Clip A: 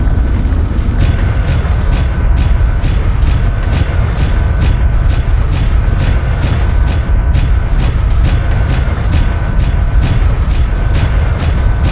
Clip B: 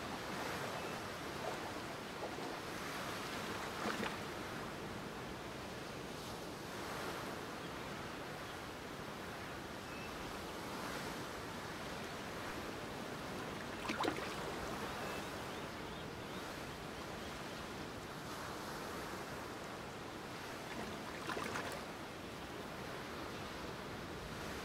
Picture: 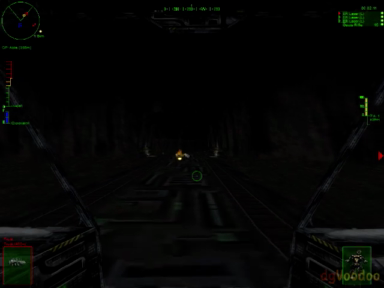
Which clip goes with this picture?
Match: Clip A